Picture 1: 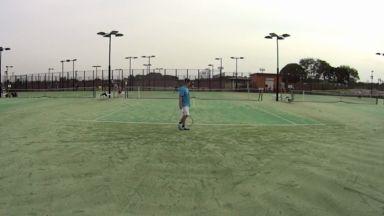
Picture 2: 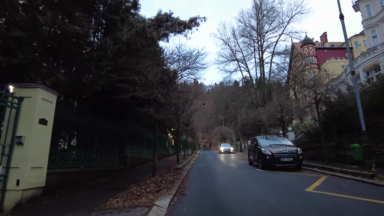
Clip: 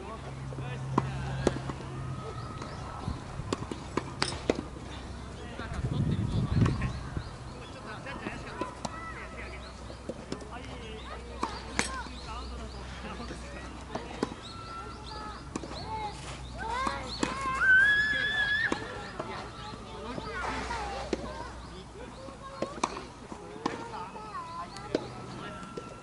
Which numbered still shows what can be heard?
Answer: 1